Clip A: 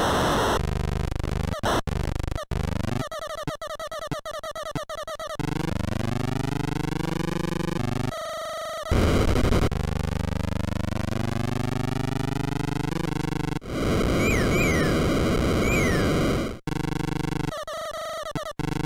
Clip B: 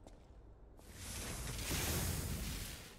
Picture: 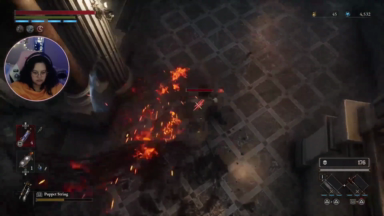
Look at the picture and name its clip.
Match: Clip B